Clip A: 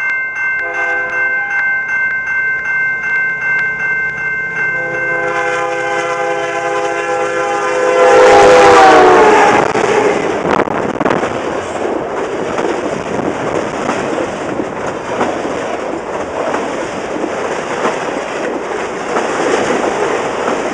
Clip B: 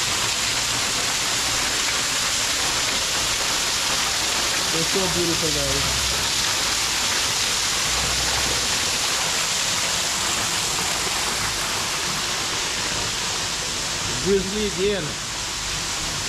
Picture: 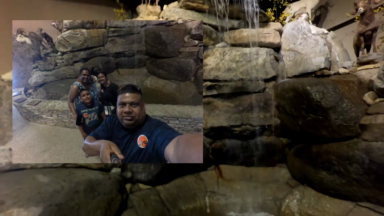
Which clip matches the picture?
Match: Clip B